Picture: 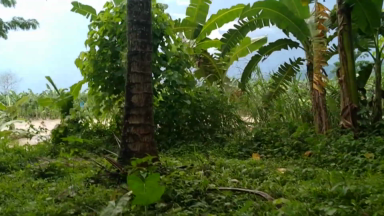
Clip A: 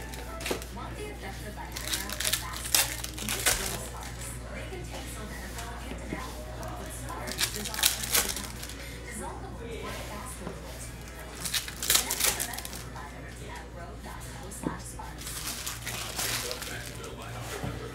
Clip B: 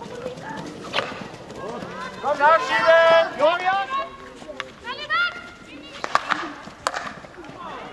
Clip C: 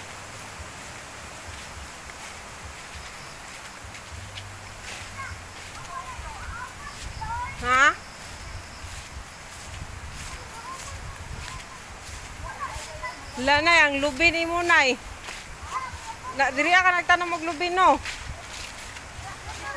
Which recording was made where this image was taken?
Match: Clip C